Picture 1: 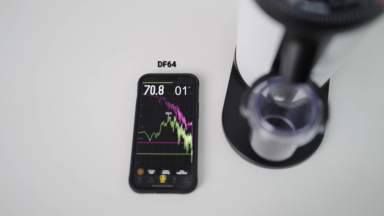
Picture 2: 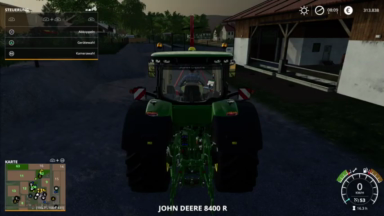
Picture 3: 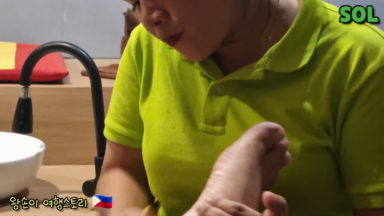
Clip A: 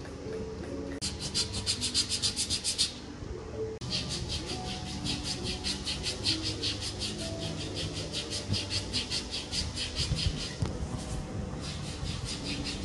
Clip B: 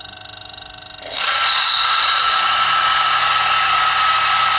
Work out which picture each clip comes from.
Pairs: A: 3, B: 1